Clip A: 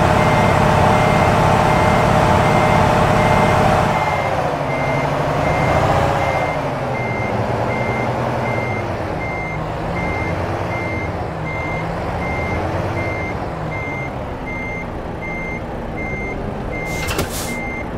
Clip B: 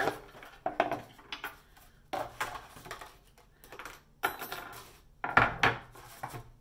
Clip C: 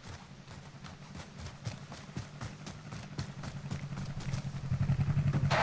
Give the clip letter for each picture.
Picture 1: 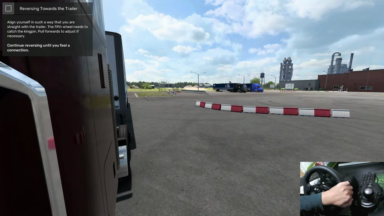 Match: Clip A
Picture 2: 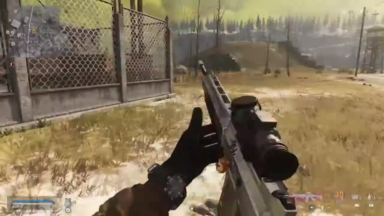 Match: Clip C